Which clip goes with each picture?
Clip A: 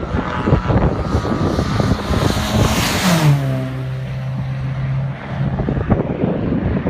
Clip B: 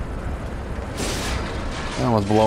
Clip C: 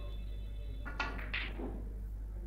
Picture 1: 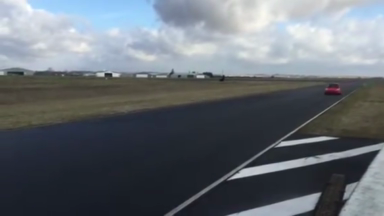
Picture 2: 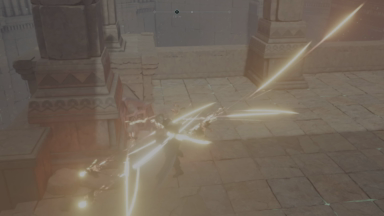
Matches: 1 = A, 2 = B